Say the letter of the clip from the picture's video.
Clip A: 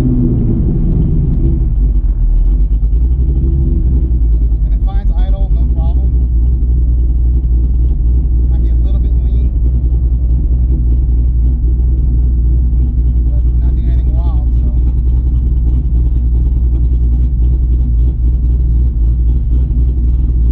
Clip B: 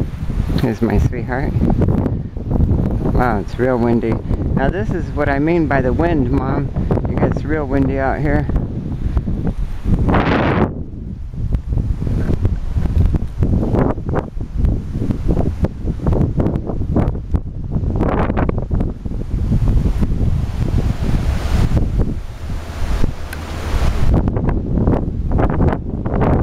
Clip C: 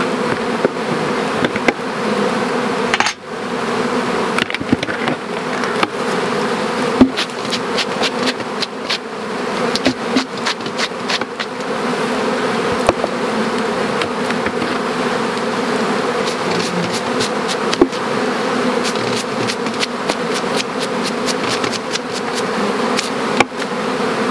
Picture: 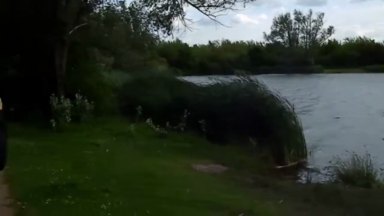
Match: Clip B